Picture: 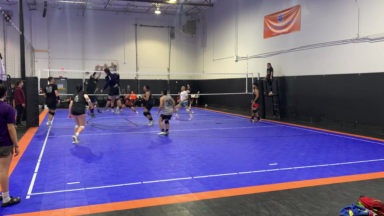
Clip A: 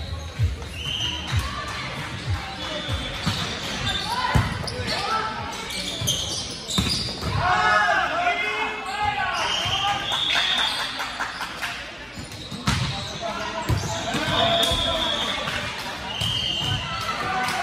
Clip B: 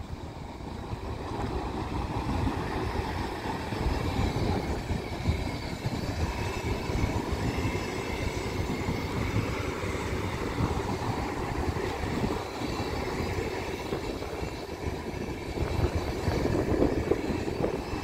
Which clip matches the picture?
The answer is A